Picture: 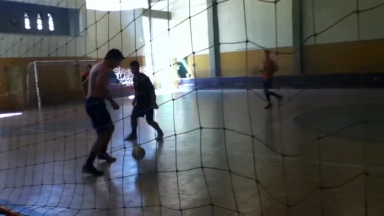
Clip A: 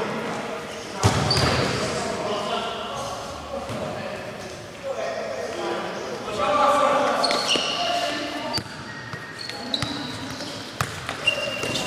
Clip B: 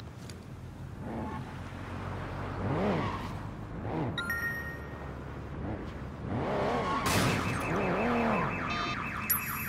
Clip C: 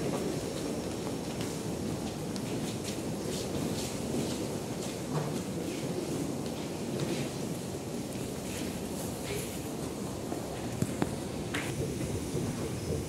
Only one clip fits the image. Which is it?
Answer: A